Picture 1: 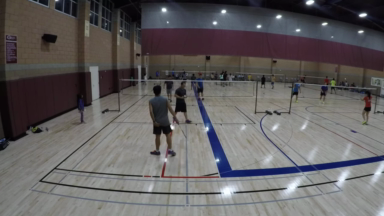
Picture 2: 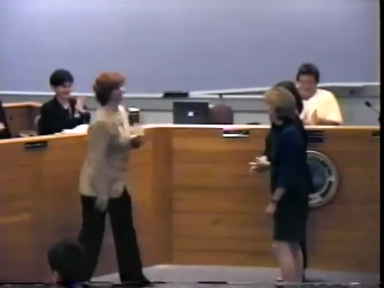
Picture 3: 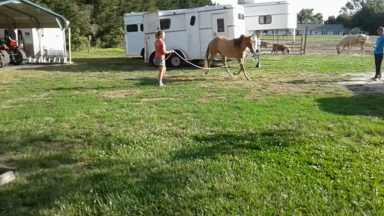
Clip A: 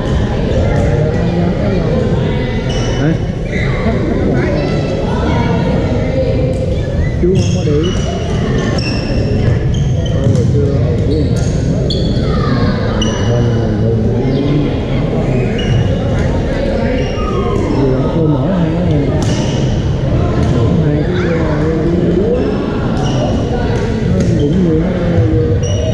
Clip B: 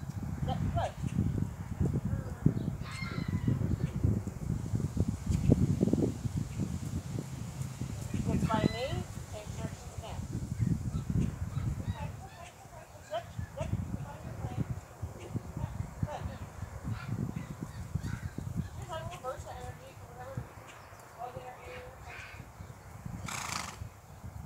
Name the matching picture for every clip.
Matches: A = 1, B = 3